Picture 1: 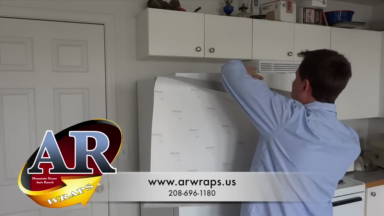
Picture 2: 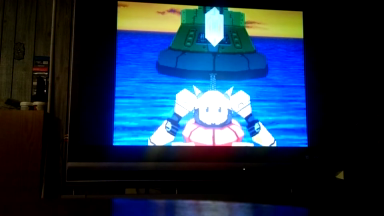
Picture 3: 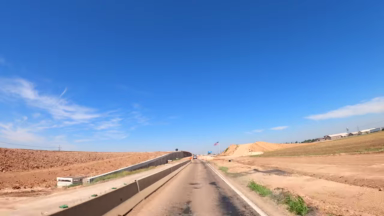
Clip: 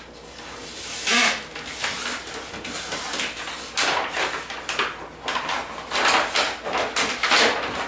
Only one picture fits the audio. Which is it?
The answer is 1